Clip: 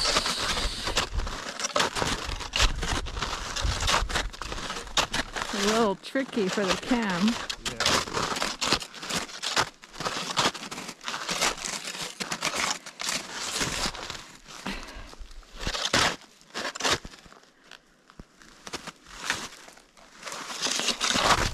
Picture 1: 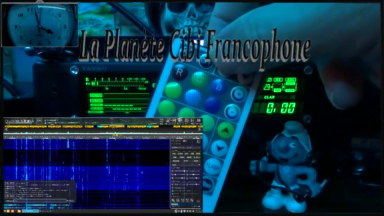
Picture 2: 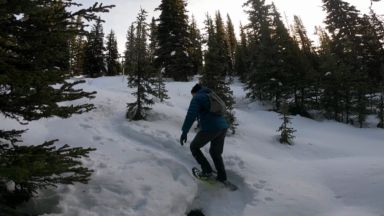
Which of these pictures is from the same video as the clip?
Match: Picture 2